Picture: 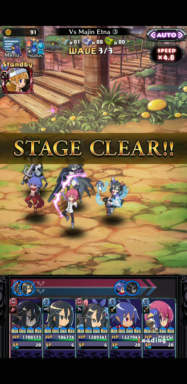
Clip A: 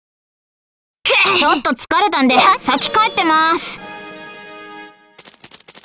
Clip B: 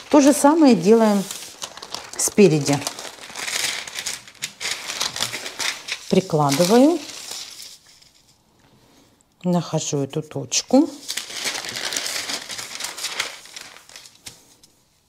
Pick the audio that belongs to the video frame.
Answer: A